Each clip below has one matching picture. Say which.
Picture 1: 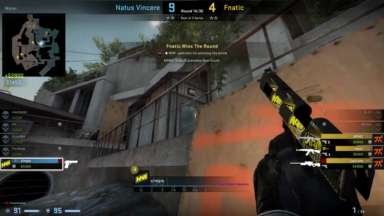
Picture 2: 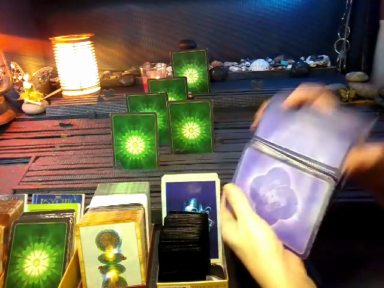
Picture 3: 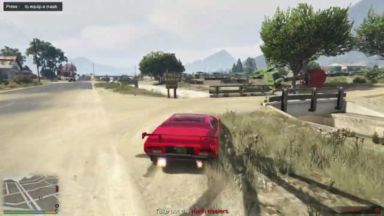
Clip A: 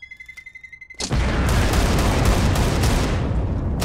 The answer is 1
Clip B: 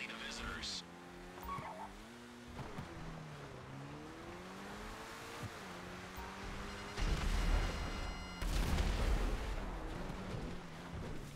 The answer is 3